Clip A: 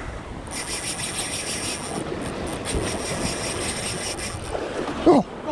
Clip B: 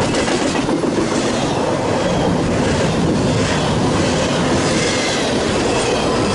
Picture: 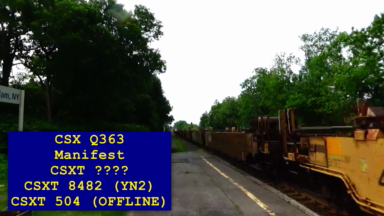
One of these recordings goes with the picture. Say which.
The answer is B